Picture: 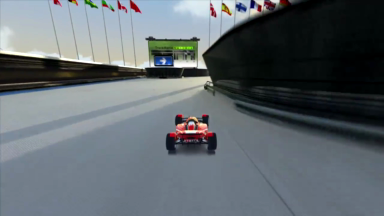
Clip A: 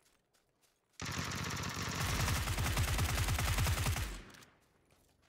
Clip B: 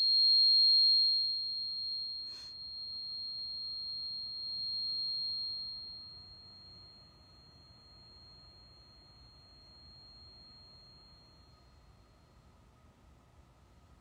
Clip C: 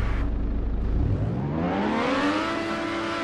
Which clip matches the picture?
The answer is C